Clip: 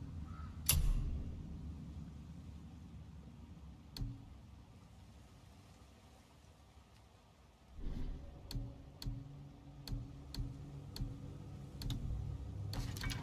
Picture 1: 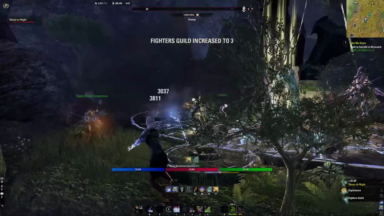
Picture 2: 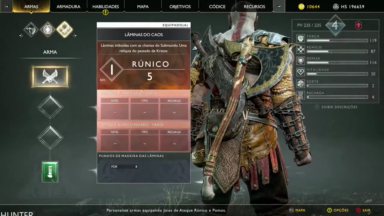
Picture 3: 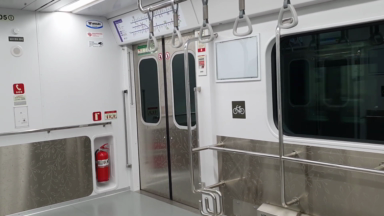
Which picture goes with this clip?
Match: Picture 2